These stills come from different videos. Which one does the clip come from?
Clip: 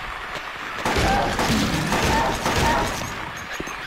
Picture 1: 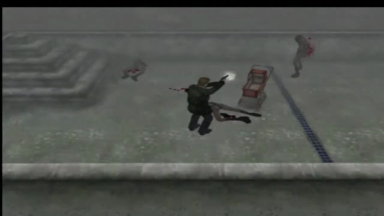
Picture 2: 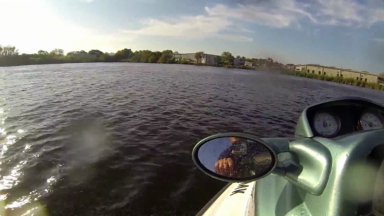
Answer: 1